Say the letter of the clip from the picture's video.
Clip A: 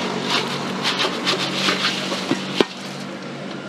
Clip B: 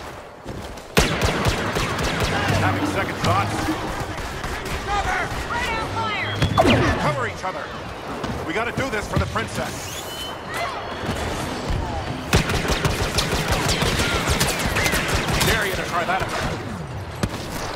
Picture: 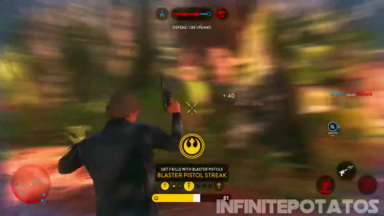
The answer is B